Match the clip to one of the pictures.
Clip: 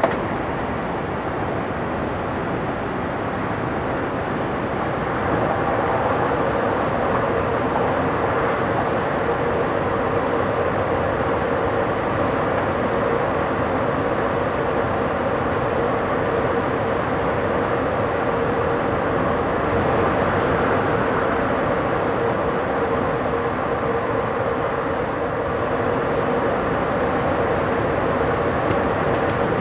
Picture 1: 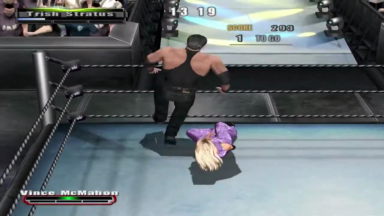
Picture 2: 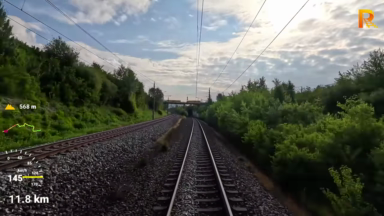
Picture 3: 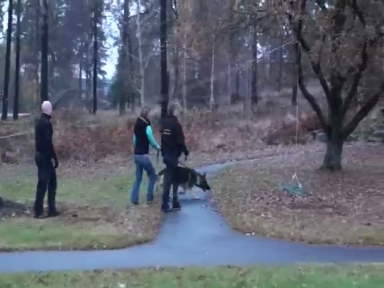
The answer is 2